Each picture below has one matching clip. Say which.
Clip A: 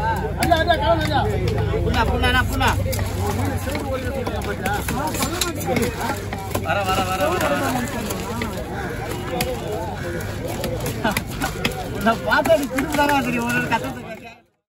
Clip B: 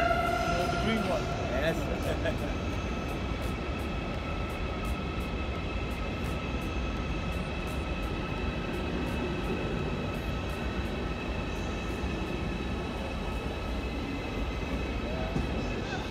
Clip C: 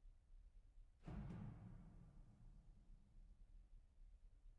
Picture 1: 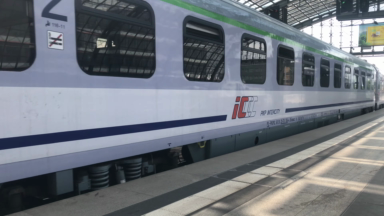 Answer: B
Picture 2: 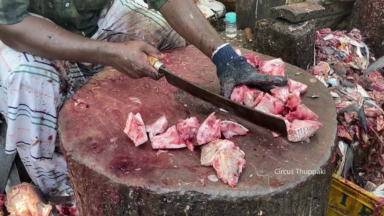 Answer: A